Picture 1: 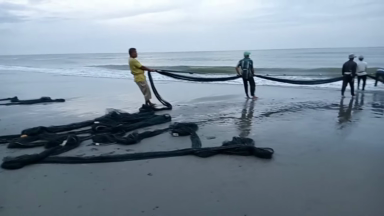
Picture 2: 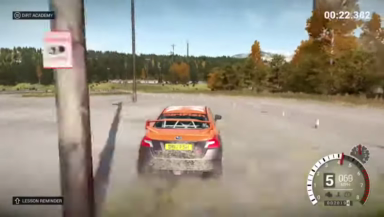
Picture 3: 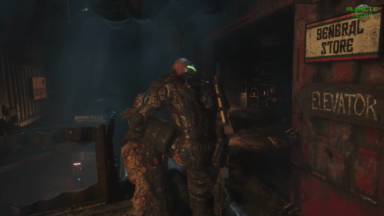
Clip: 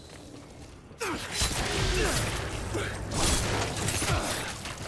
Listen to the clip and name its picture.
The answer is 3